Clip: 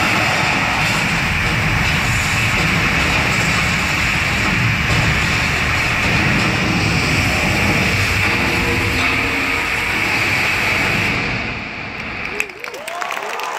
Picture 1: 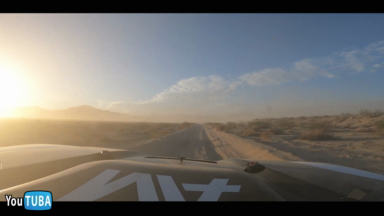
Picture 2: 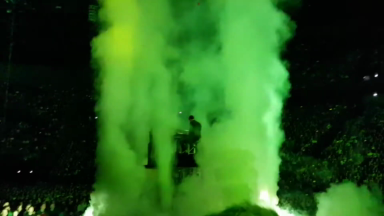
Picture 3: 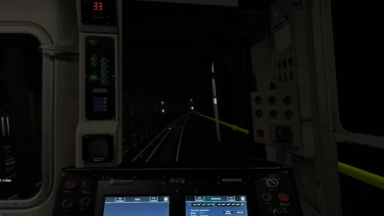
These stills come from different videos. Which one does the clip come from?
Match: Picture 2